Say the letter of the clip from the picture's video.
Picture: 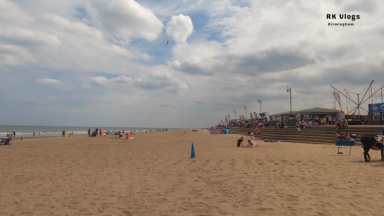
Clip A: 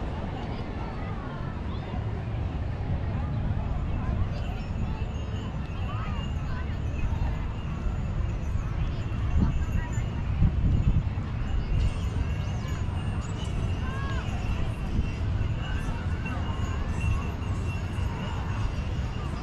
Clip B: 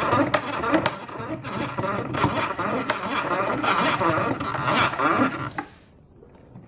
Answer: A